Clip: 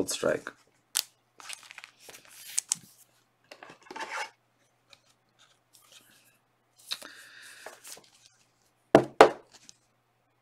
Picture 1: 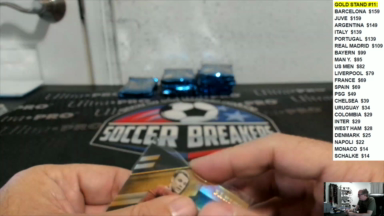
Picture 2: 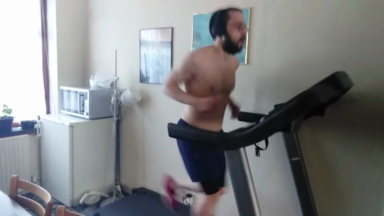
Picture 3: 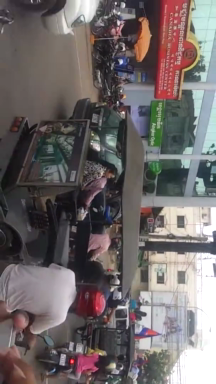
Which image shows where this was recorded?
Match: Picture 1